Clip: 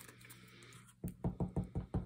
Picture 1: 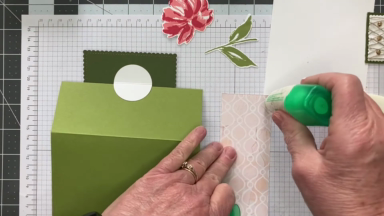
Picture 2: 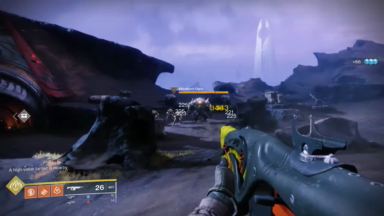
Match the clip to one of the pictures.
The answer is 1